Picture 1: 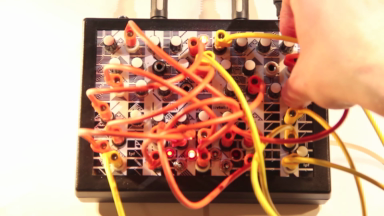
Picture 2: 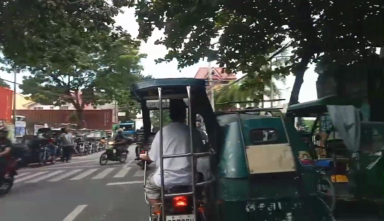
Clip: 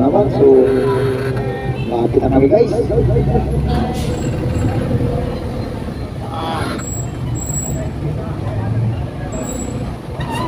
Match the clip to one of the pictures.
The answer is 2